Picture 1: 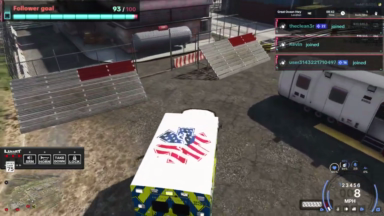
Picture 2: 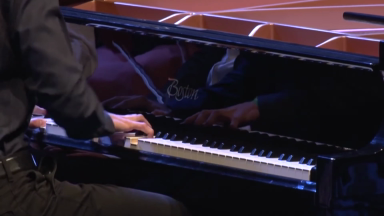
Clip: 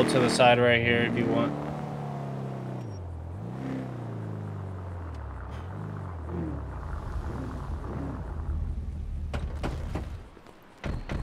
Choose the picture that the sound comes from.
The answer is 1